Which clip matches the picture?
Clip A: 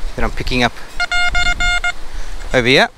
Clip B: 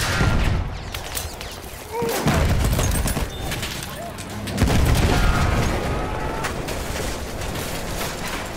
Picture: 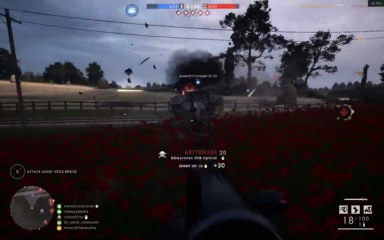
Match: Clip B